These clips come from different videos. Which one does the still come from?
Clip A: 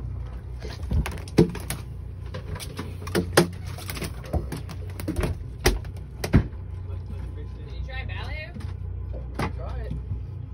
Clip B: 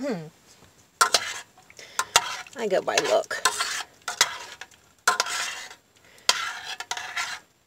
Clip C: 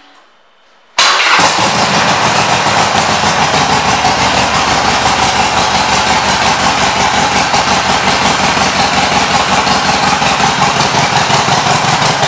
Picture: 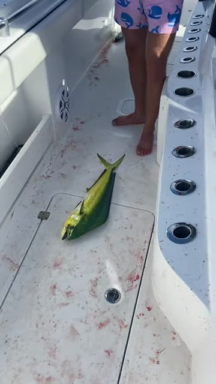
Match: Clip A